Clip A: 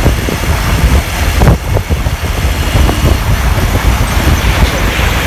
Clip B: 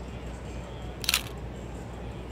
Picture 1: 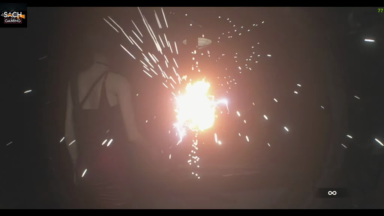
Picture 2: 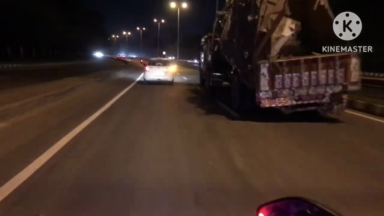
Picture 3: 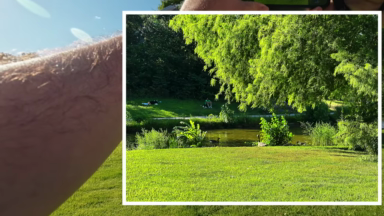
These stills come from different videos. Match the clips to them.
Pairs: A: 2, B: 3